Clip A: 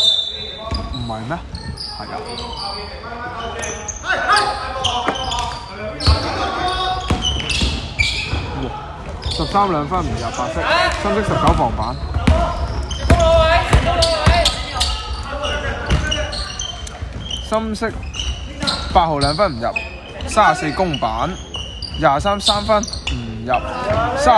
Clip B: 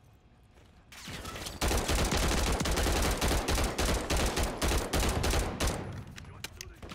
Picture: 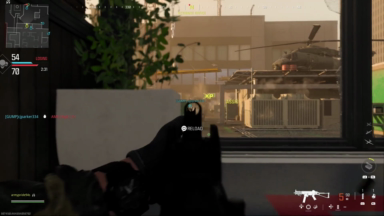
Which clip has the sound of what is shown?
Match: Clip B